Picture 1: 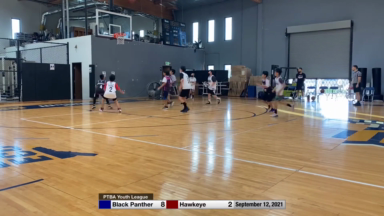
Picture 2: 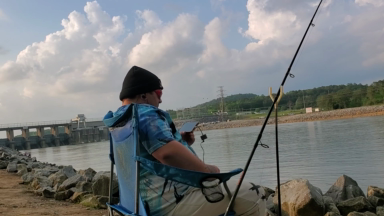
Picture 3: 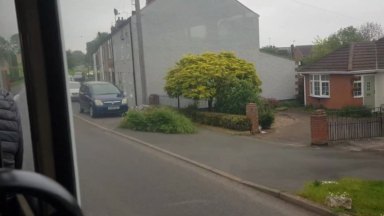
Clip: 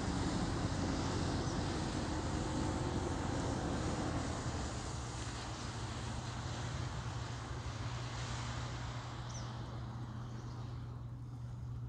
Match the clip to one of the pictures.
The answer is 2